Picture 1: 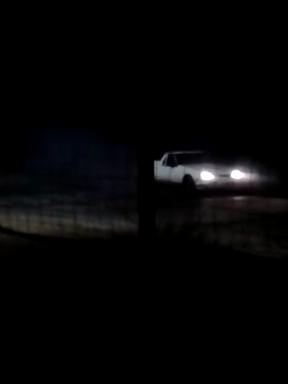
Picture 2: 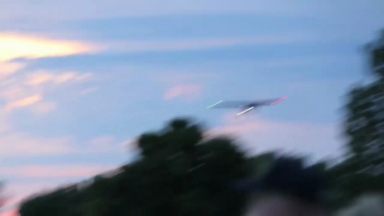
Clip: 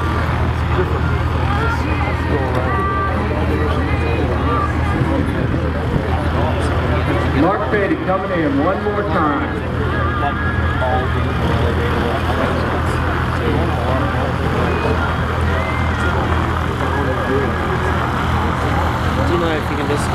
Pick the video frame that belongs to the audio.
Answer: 2